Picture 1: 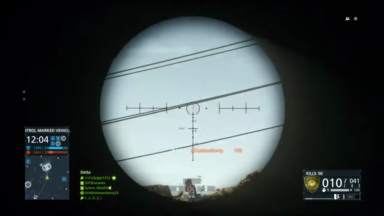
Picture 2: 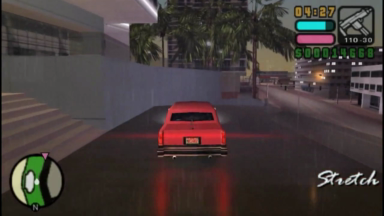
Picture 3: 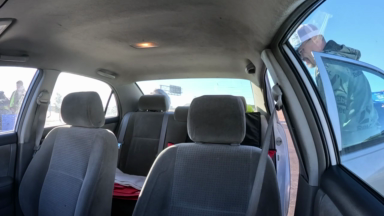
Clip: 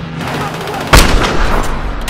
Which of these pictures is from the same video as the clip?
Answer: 1